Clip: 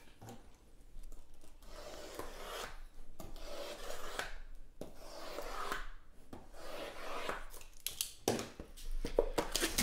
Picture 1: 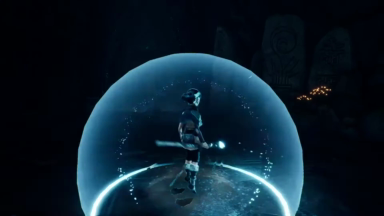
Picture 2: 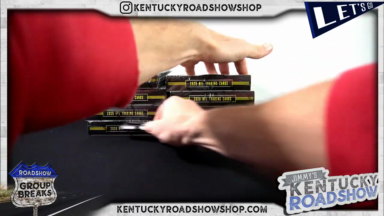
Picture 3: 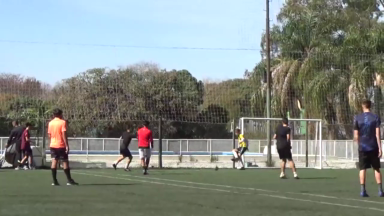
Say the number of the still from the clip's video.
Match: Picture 2